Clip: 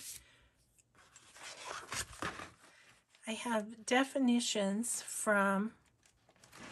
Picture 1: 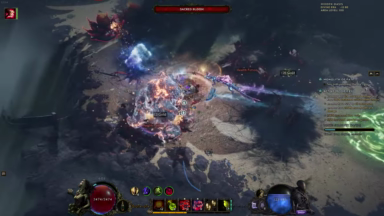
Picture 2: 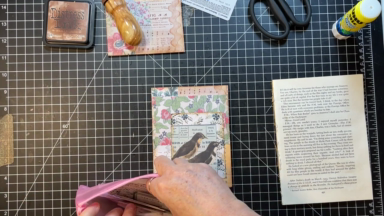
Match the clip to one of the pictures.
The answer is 2